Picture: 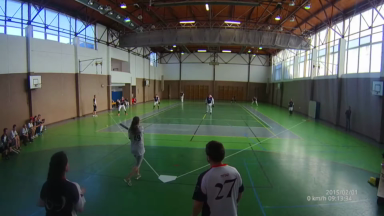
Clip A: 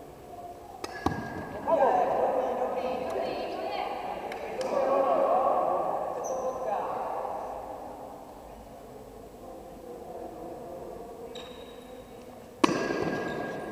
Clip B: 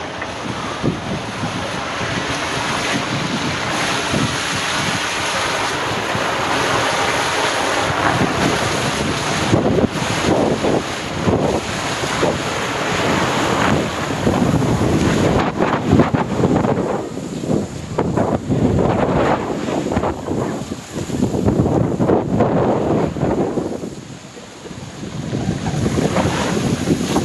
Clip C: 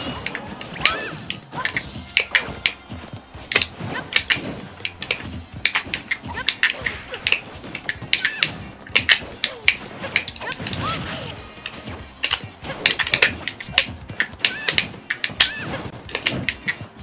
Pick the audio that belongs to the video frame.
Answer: A